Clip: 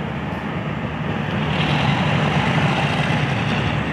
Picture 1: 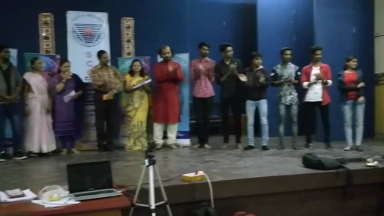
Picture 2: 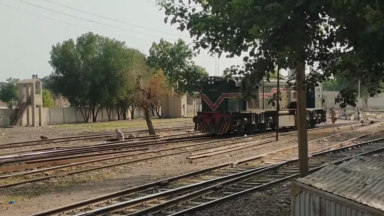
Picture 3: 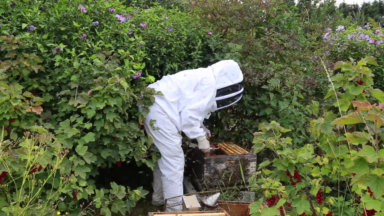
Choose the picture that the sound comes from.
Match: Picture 2